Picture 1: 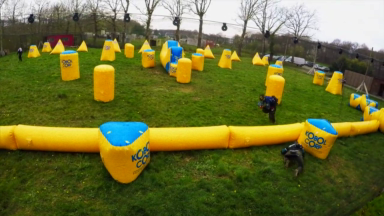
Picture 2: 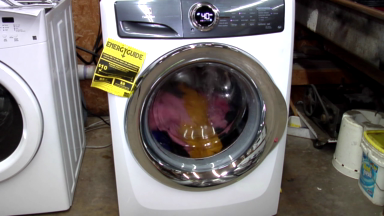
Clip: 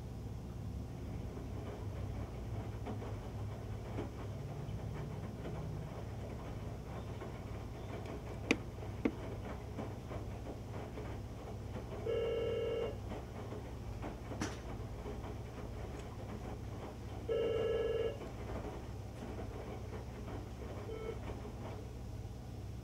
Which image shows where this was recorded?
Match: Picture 2